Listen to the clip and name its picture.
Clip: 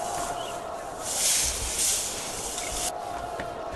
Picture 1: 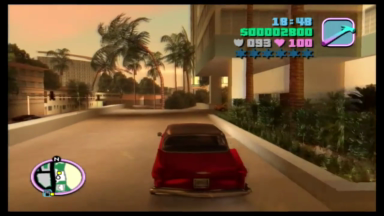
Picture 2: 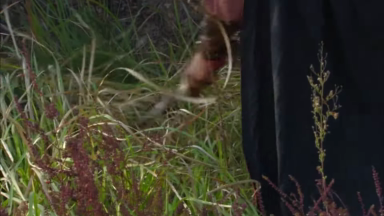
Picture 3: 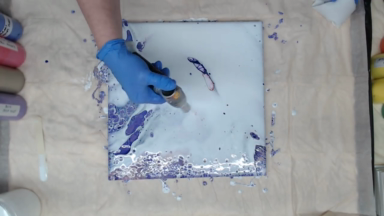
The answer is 2